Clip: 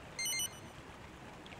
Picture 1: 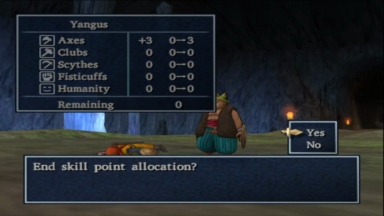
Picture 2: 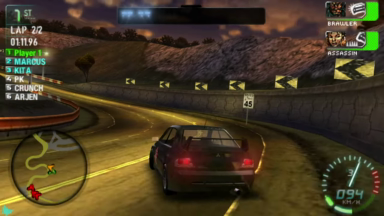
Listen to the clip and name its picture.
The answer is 1